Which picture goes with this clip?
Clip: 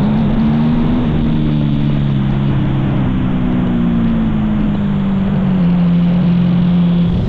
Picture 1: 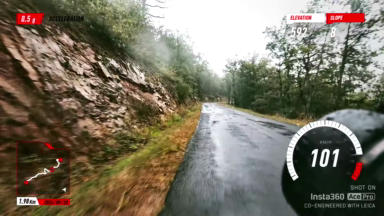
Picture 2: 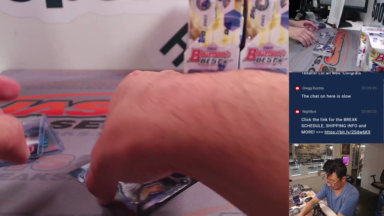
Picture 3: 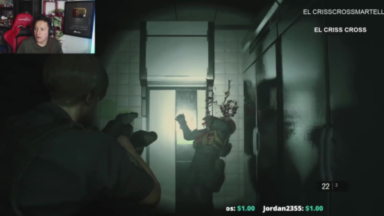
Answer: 1